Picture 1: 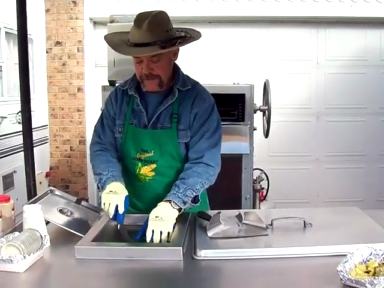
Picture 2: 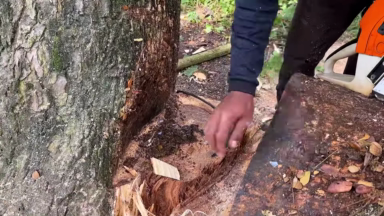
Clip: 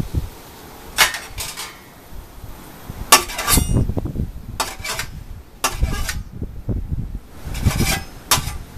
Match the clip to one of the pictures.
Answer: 1